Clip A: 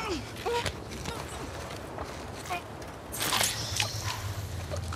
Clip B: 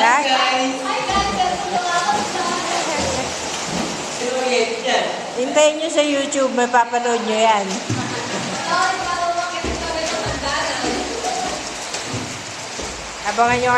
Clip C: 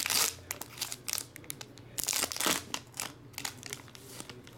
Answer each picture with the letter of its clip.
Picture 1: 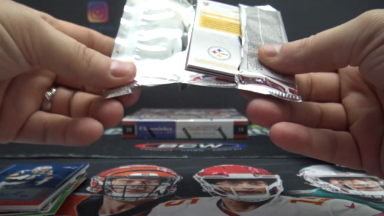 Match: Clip C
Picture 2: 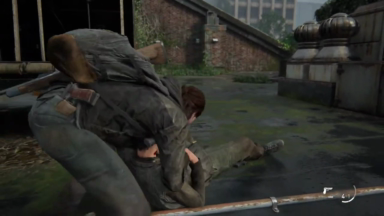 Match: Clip A